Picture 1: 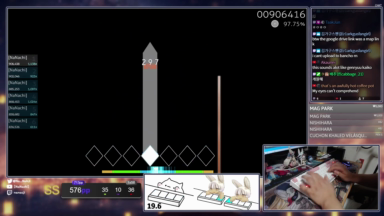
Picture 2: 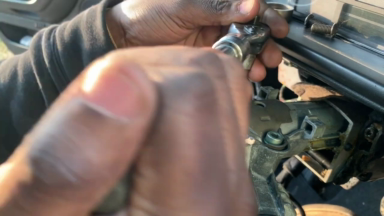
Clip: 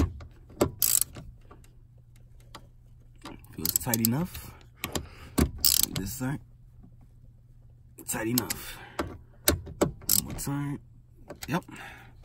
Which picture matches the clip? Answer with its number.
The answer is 2